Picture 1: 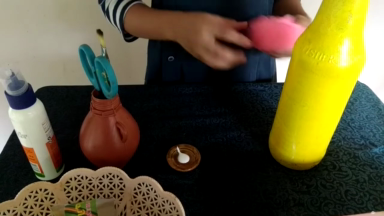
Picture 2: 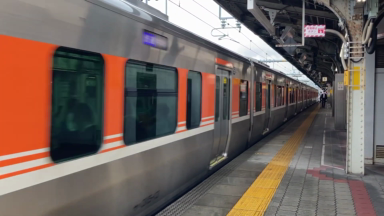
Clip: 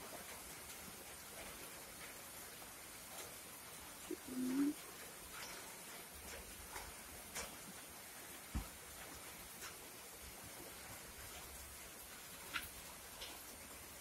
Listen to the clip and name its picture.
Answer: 1